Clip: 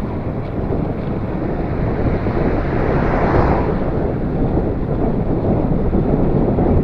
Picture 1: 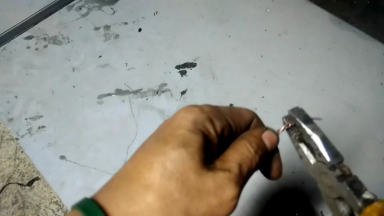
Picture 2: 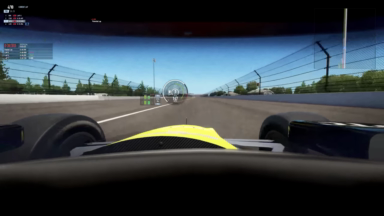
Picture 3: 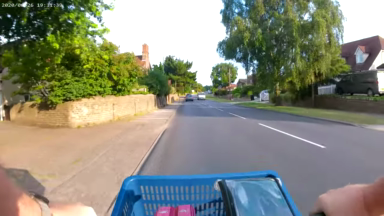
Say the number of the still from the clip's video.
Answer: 3